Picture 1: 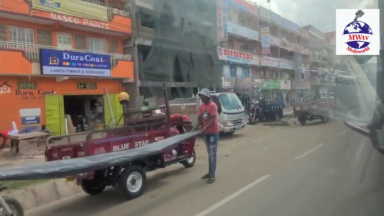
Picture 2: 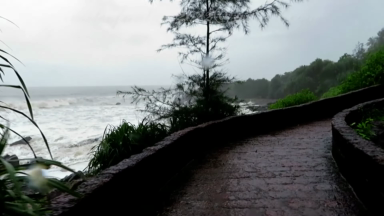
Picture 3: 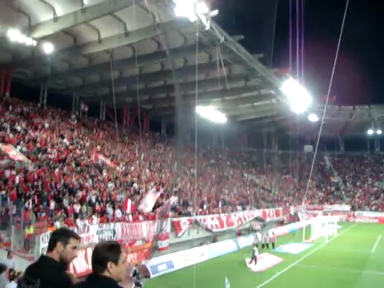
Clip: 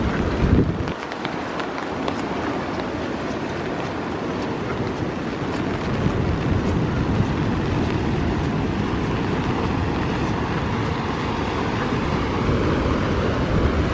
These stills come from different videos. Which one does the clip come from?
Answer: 2